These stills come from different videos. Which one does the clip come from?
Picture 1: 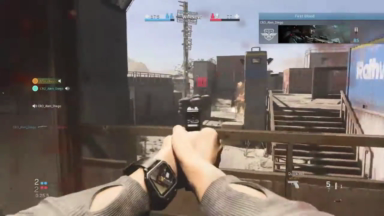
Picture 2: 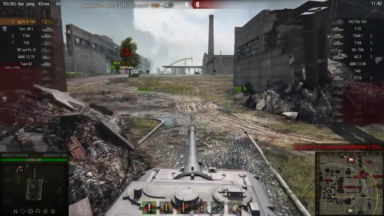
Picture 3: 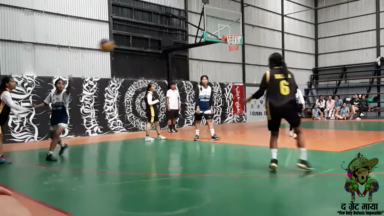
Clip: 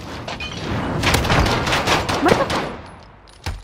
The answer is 1